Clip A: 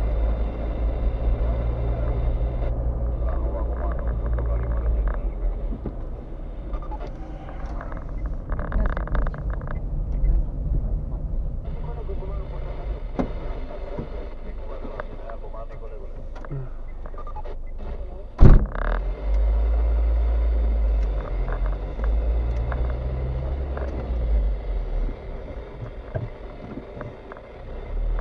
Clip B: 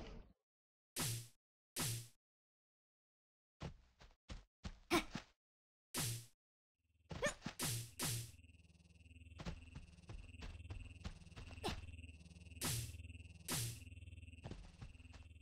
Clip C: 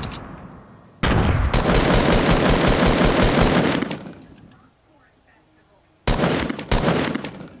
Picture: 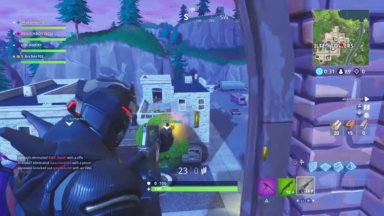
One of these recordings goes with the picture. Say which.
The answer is C